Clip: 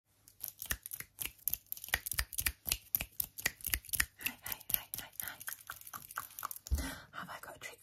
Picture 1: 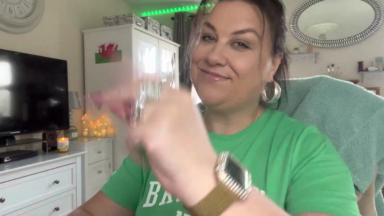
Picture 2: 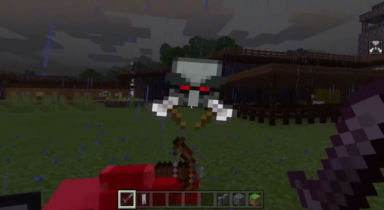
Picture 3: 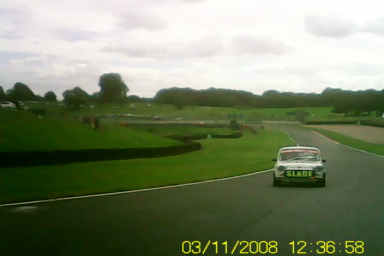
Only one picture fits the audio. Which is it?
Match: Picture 1